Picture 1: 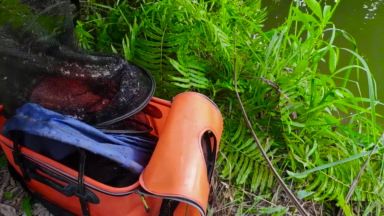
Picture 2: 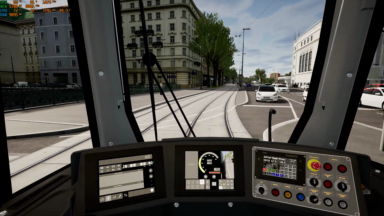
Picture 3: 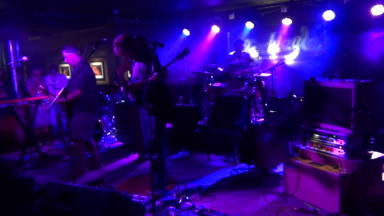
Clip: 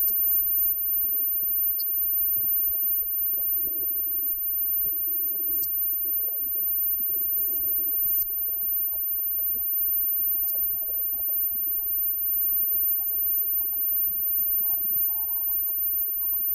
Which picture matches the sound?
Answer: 3